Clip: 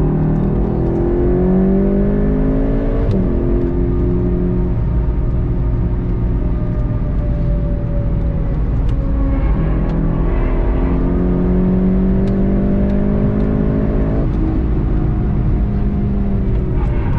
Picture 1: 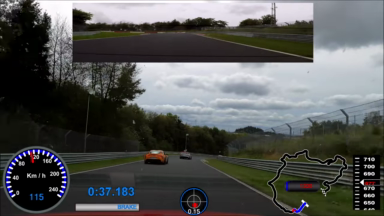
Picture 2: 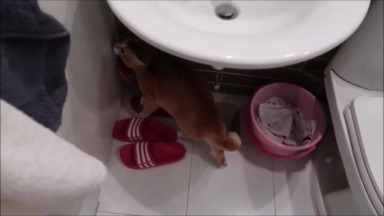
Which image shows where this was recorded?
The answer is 1